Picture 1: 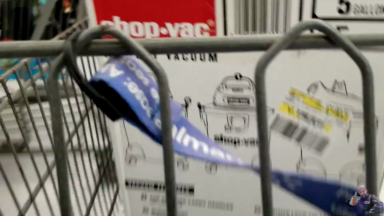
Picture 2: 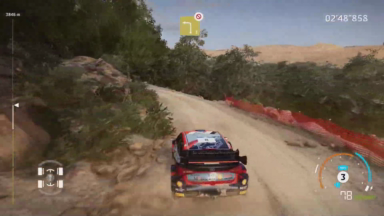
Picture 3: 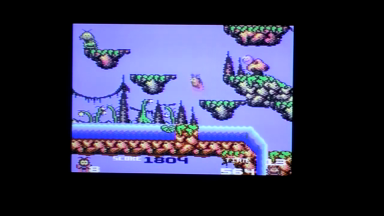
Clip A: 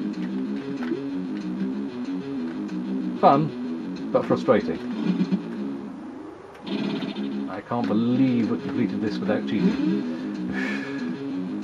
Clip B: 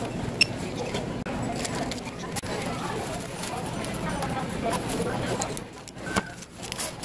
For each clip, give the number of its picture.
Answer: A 3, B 1